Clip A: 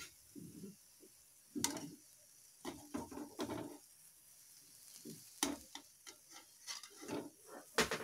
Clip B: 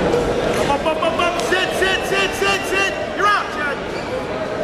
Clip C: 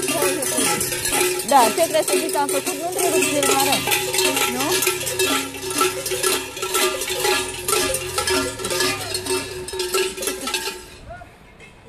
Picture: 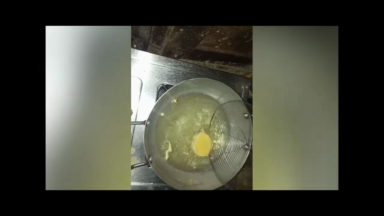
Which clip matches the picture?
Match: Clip A